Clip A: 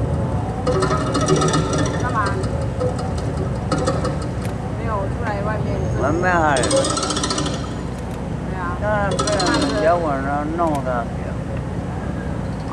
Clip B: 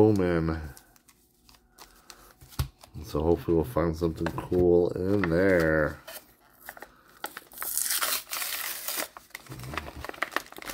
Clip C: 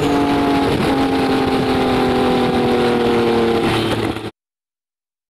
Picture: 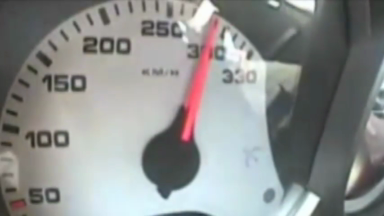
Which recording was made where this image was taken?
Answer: C